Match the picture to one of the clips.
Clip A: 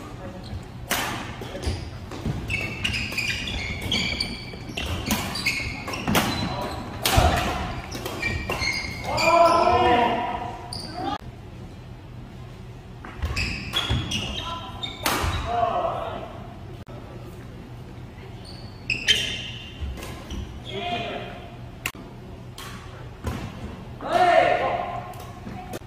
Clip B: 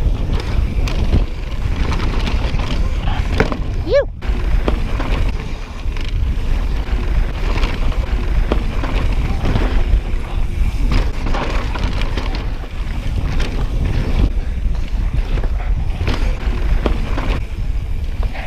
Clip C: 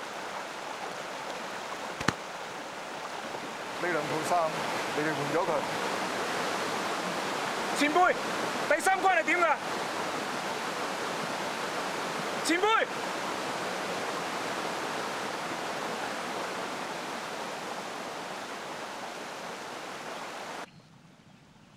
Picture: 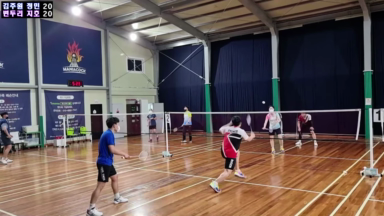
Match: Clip A